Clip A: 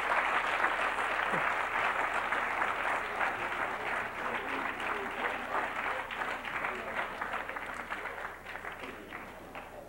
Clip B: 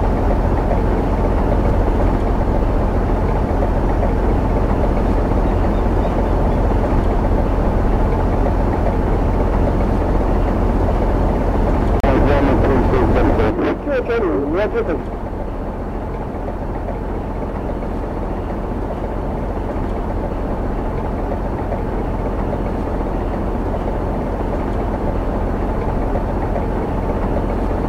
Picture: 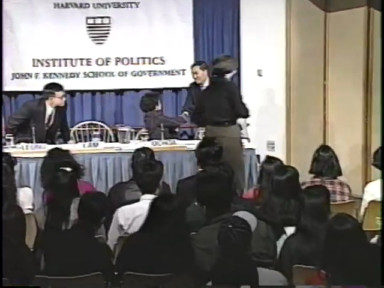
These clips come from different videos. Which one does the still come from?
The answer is A